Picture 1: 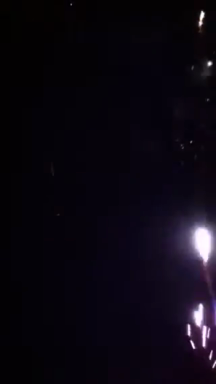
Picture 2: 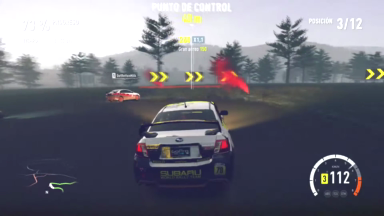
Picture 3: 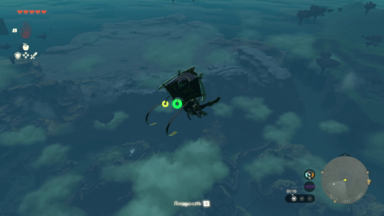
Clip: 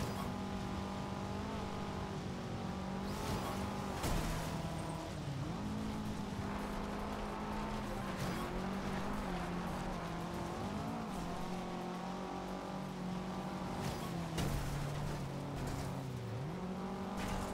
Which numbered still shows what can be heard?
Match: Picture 2